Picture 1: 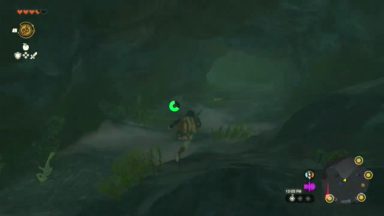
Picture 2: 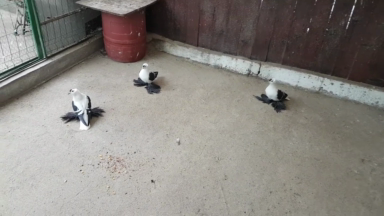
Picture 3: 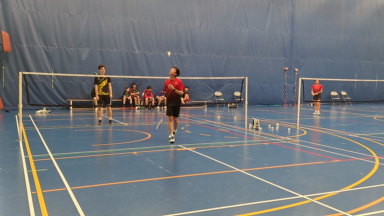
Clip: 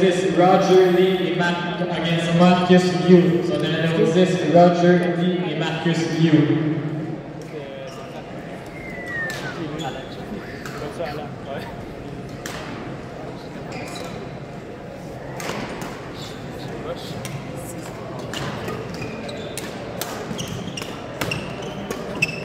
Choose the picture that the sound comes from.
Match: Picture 3